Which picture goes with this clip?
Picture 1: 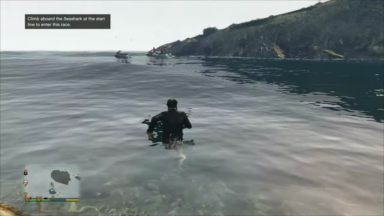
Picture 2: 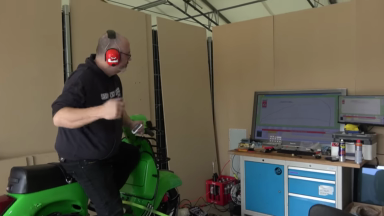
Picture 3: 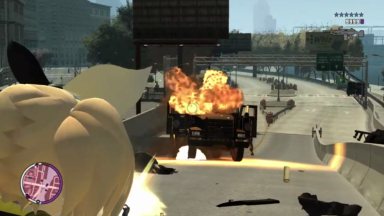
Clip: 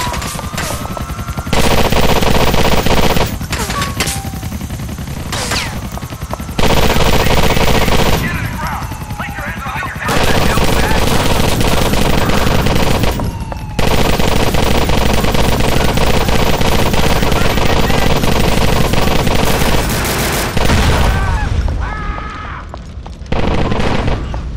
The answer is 3